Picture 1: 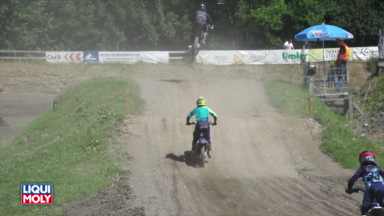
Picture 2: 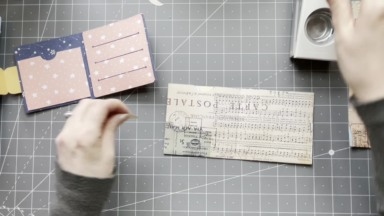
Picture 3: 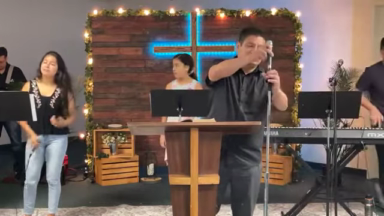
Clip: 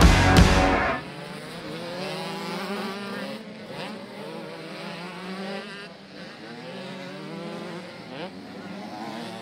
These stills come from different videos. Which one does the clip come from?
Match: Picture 1